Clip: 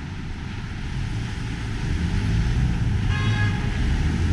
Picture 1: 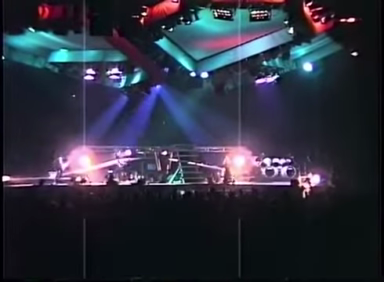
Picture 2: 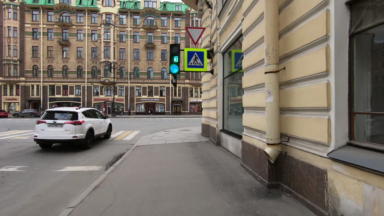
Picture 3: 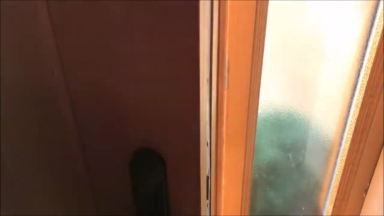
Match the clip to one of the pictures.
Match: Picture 2